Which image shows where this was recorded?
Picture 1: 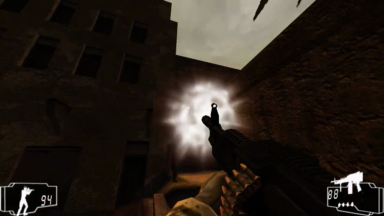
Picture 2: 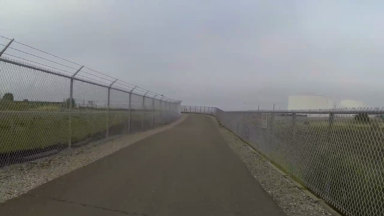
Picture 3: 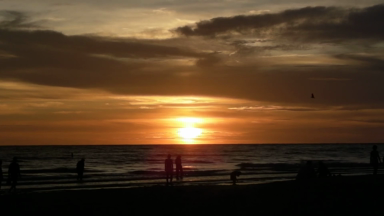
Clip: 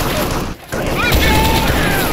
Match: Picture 1